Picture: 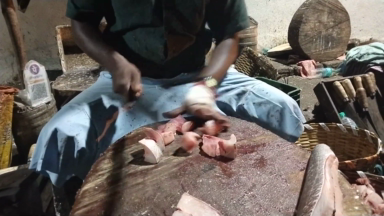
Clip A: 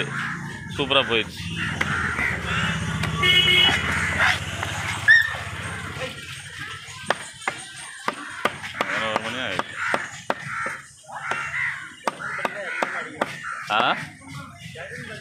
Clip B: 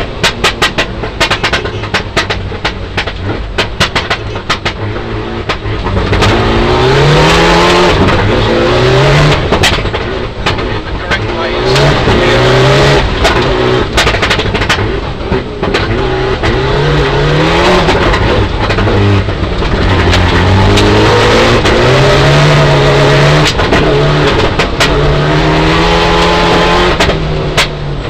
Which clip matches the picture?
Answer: A